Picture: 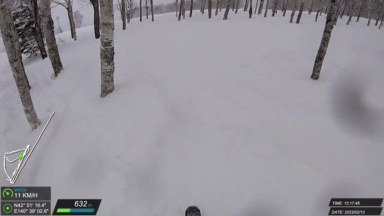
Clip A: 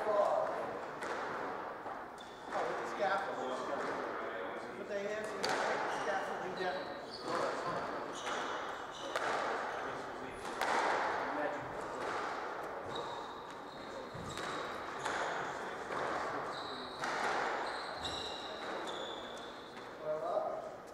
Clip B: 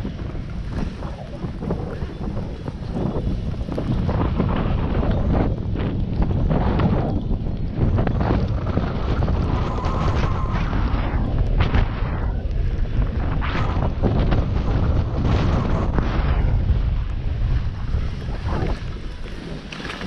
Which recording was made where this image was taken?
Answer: B